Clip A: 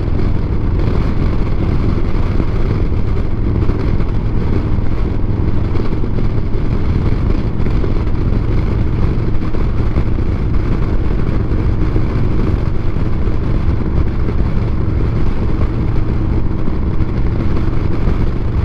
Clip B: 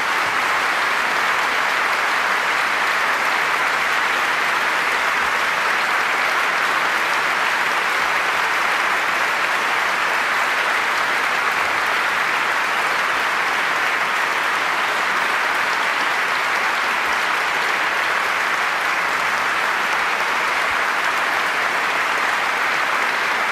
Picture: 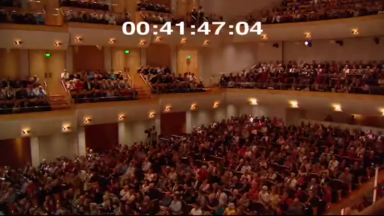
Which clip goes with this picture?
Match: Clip B